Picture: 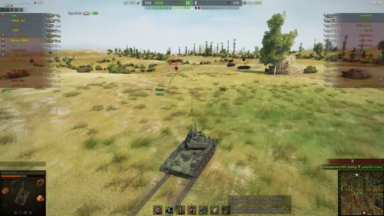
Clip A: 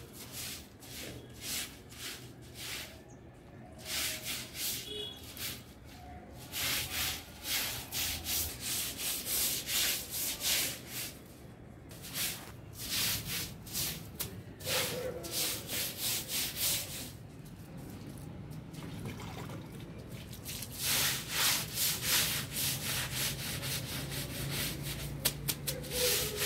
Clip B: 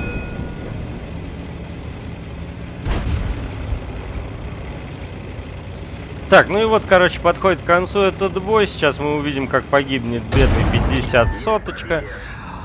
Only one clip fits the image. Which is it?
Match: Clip B